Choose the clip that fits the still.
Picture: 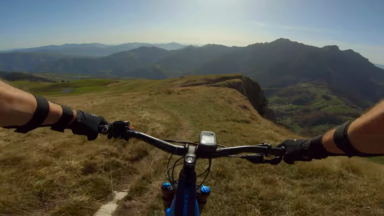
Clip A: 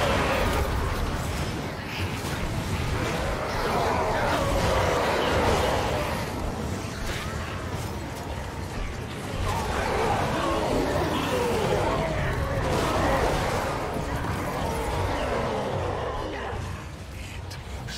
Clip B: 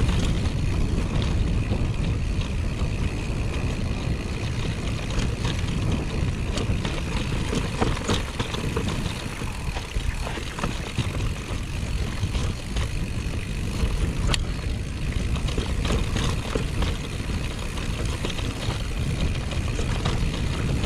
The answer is B